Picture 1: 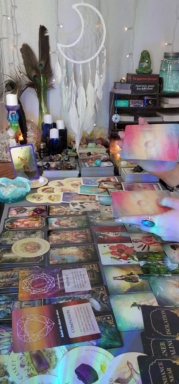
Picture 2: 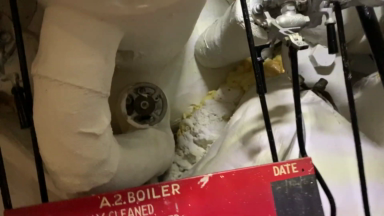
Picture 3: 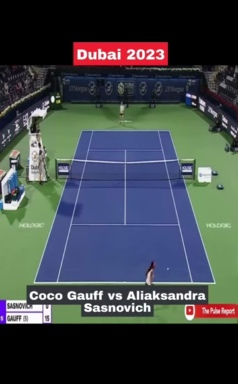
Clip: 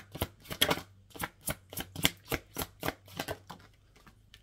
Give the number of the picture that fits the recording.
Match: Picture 1